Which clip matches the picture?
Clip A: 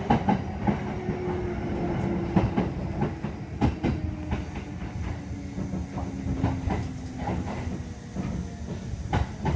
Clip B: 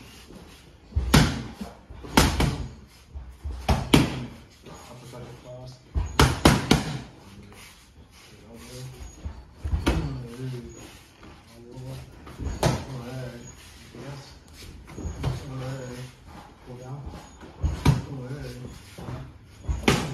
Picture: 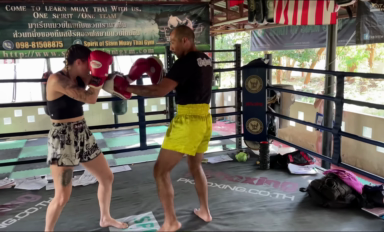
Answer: B